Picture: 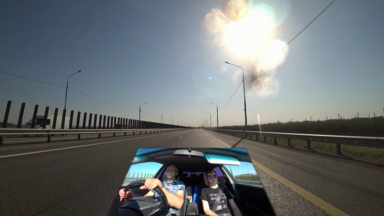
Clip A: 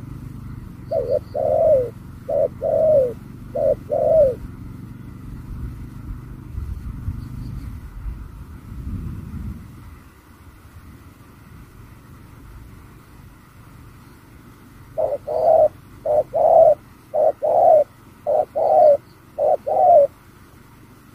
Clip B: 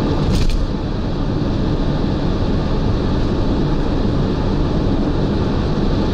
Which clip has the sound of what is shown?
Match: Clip B